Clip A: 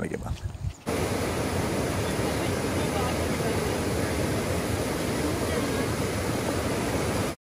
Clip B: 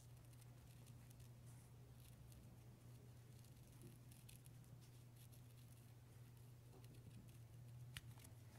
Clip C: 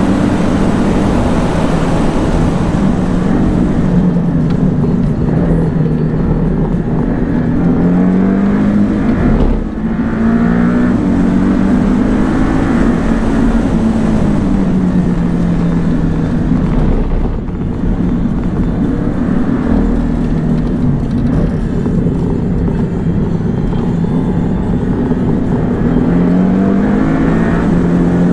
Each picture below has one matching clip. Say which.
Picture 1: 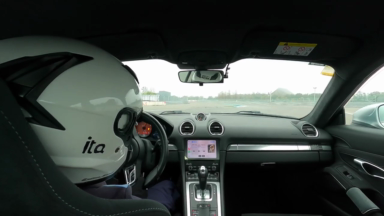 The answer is C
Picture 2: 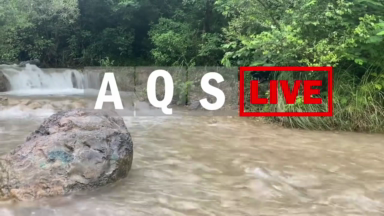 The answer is A